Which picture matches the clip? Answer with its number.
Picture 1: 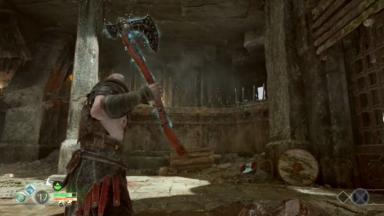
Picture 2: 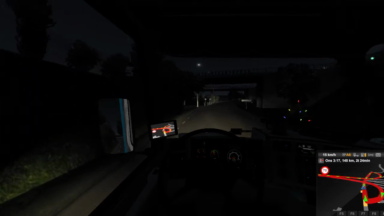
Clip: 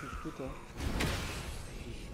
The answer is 1